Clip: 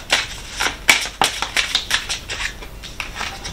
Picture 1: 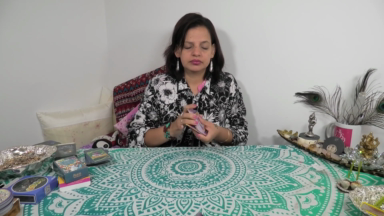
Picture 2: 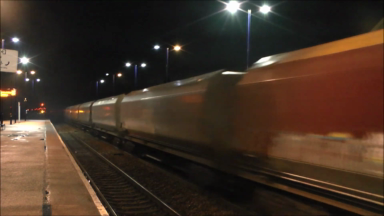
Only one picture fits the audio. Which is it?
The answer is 1